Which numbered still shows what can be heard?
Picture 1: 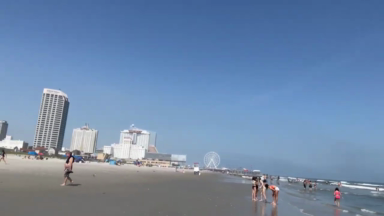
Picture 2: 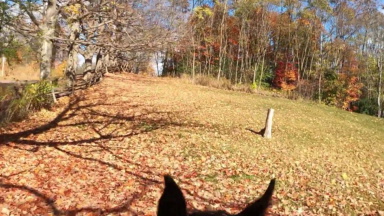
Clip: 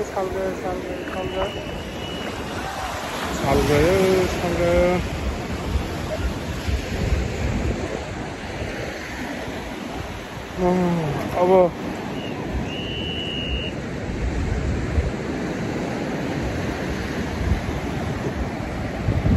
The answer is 1